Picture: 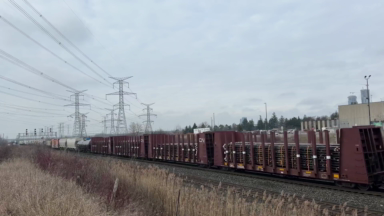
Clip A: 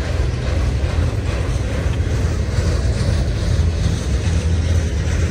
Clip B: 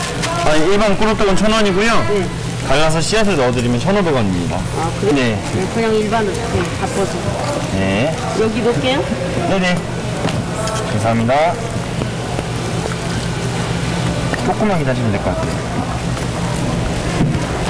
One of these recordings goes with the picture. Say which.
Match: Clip A